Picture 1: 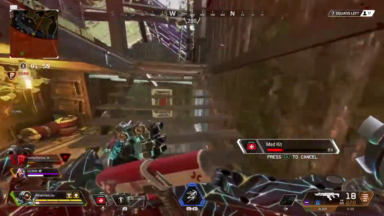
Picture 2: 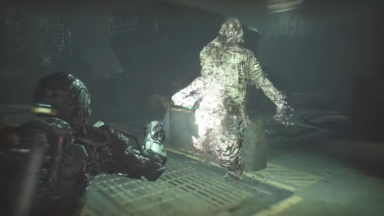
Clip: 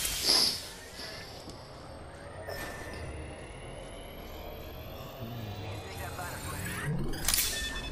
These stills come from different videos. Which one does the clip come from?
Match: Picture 1